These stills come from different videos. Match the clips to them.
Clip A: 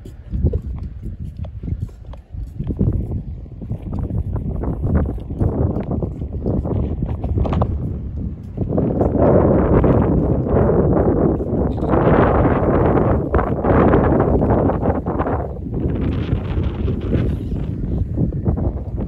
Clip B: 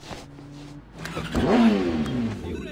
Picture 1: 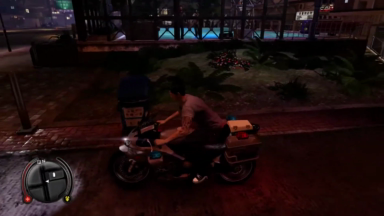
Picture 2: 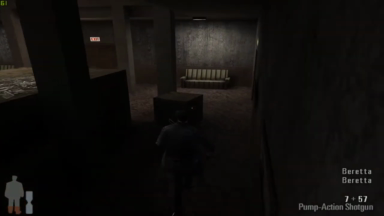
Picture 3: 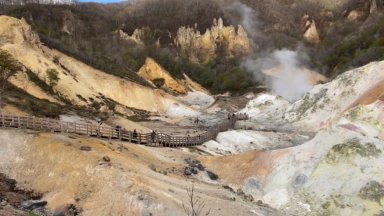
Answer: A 3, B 1